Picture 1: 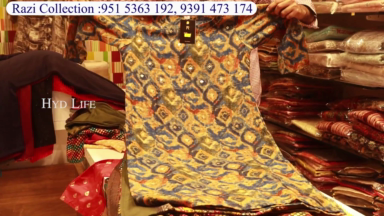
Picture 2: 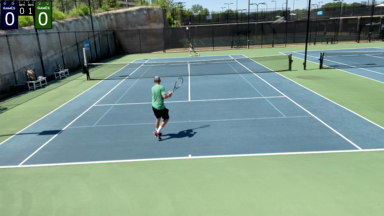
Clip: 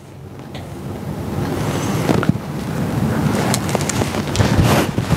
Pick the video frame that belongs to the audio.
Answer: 1